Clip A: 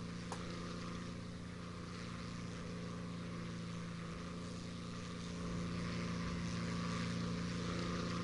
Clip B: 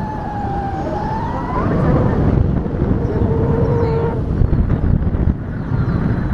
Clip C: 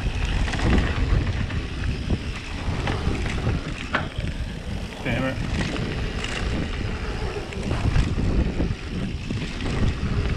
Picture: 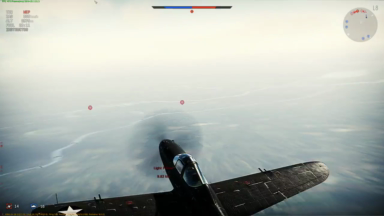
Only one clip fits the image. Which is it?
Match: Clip A